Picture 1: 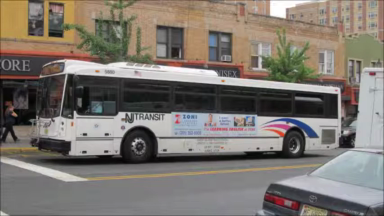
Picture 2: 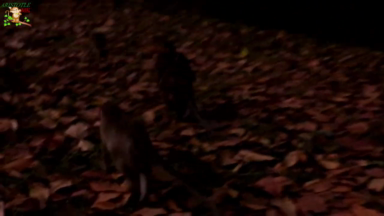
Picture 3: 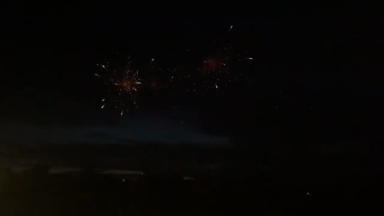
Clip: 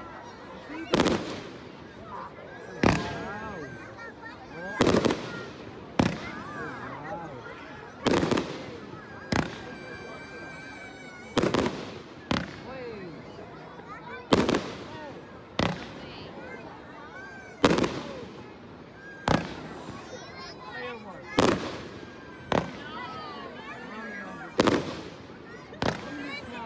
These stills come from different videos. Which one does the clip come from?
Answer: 3